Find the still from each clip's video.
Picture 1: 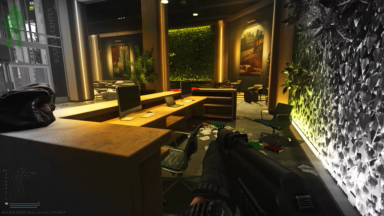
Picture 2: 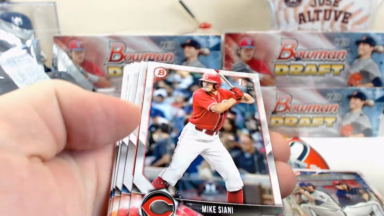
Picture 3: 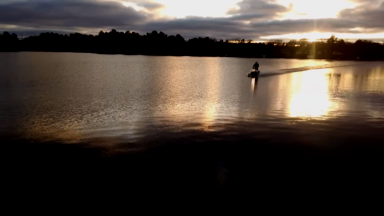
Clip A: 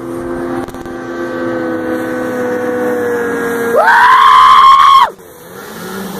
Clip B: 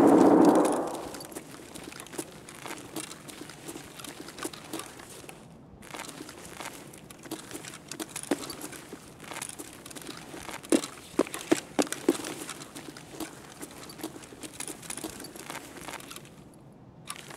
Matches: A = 3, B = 1